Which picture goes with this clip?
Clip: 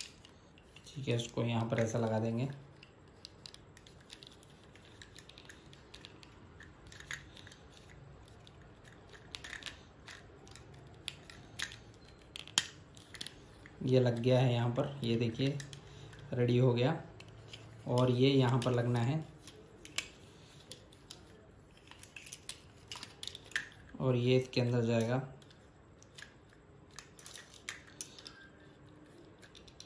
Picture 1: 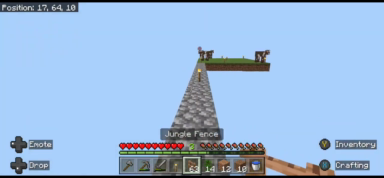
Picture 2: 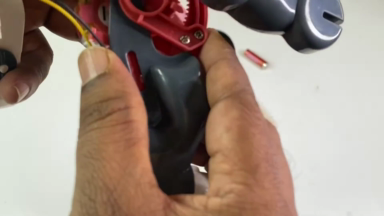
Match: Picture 2